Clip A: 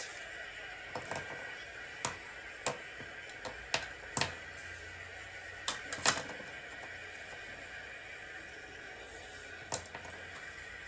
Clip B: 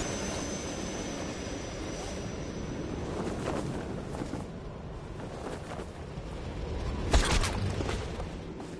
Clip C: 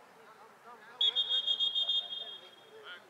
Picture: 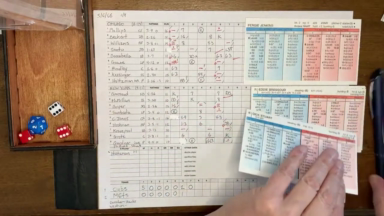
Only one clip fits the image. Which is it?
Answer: A